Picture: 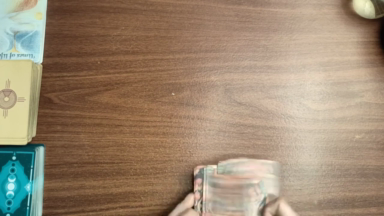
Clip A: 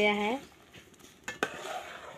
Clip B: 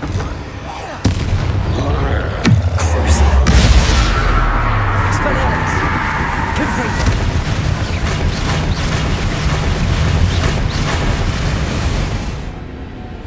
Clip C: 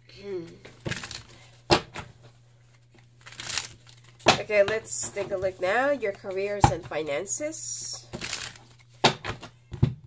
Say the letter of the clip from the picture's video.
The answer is C